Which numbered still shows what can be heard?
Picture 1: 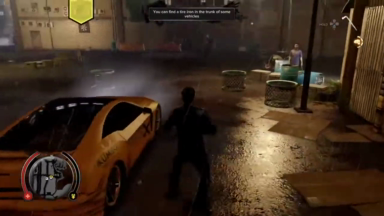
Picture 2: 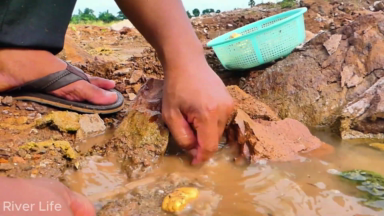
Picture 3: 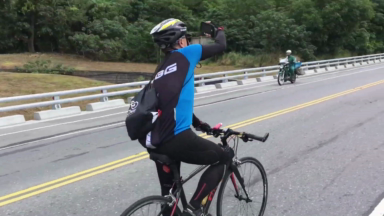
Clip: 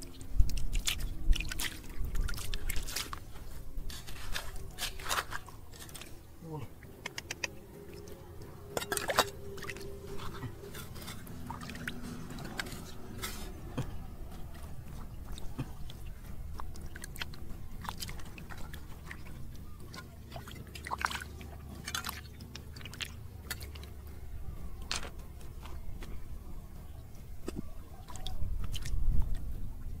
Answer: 2